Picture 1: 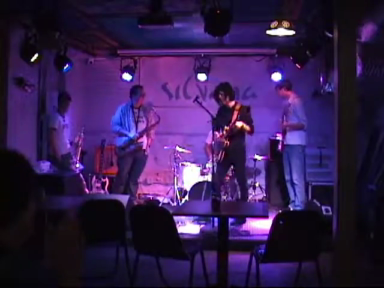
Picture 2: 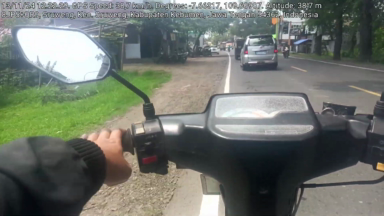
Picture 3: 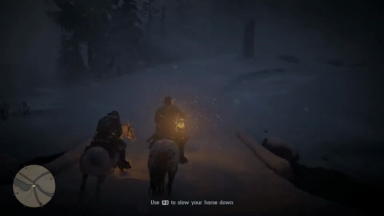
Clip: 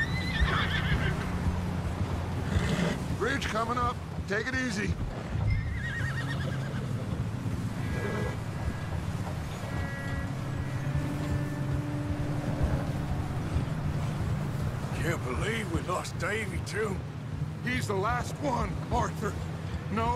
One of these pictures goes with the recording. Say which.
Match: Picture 3